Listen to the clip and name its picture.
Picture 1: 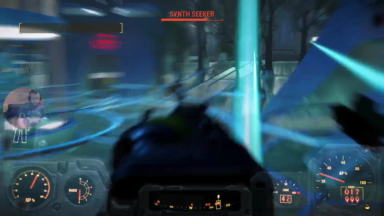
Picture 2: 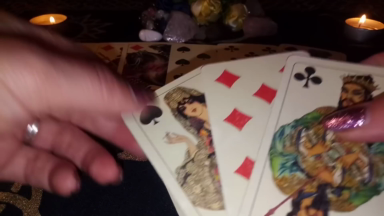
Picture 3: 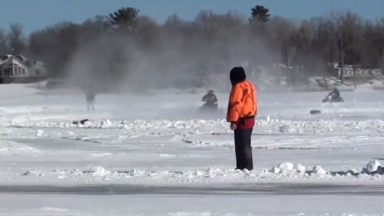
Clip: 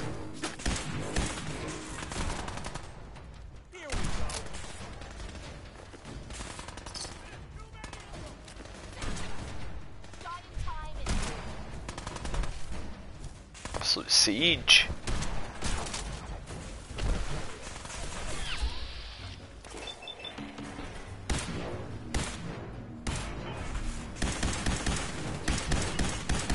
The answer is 1